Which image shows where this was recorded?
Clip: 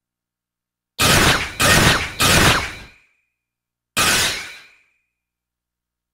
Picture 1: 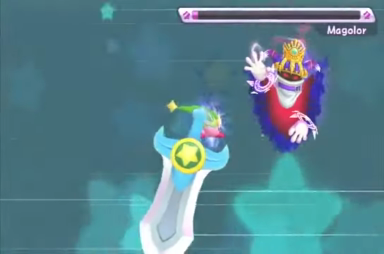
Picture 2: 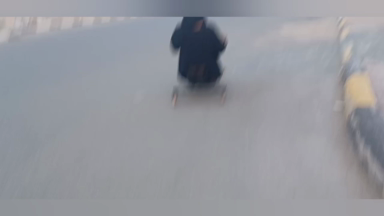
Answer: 1